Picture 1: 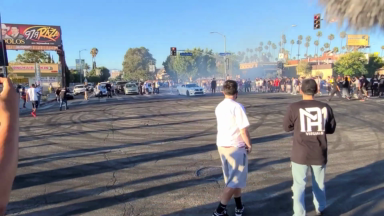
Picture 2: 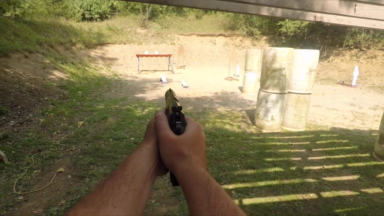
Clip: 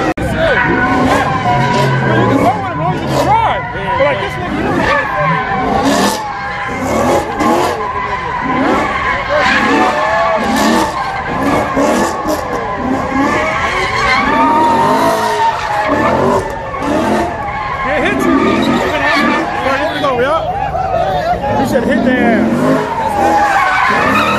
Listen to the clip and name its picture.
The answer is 1